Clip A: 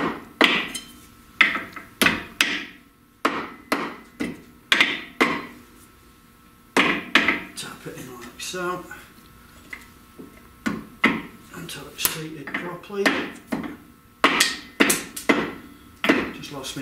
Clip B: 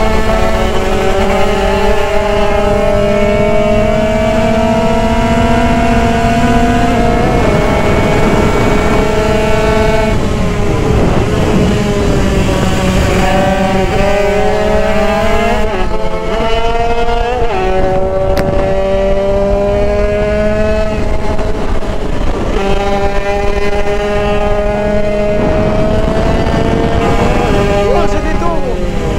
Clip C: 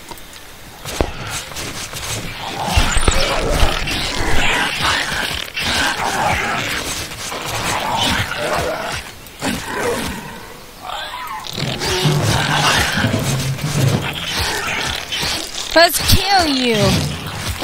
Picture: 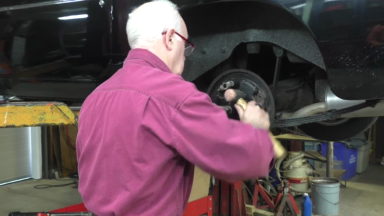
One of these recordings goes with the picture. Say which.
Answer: A